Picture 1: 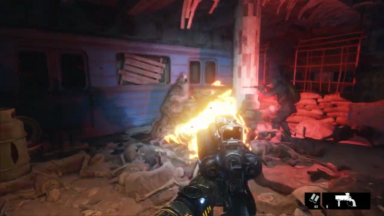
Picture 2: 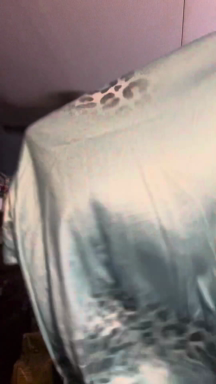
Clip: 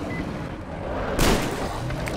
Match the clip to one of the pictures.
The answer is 1